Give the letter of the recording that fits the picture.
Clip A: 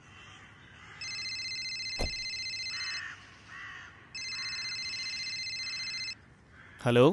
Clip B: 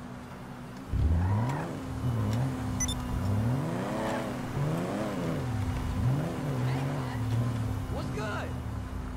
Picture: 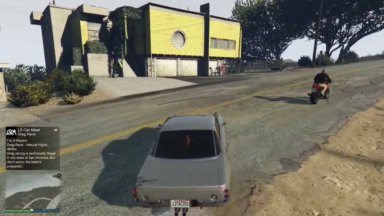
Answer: B